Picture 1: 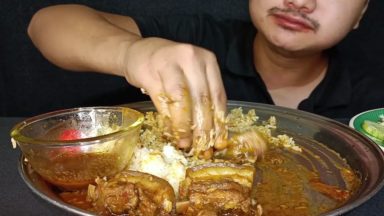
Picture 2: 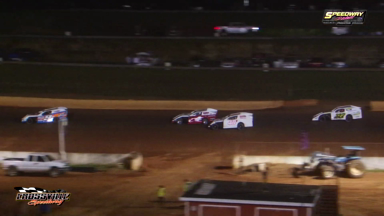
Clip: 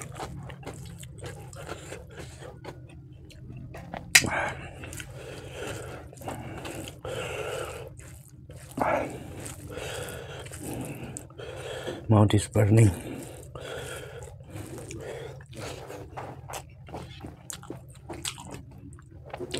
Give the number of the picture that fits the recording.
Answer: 1